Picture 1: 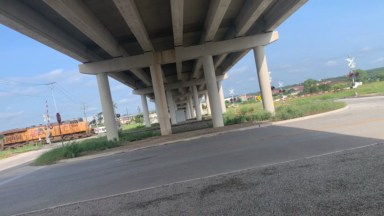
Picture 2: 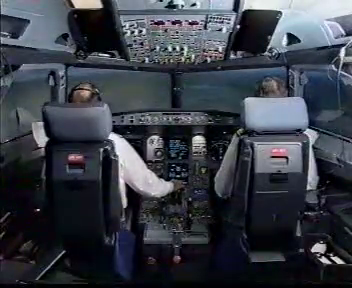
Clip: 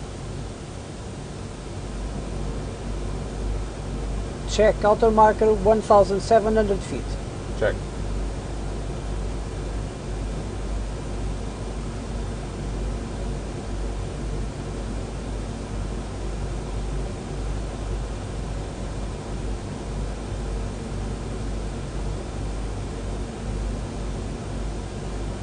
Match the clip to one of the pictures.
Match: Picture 2